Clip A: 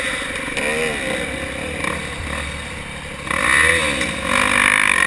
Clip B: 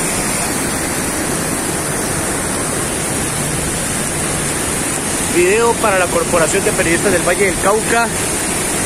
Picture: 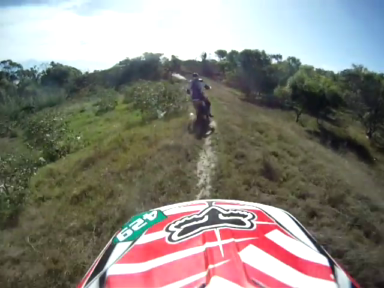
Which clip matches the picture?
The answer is A